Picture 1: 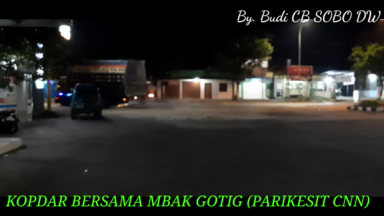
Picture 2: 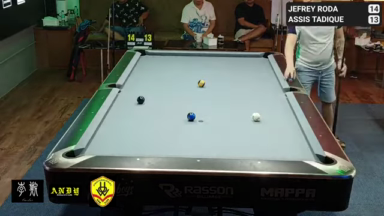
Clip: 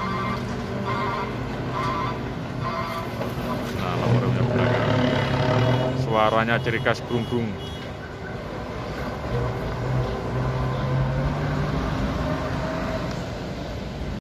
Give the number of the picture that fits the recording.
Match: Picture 1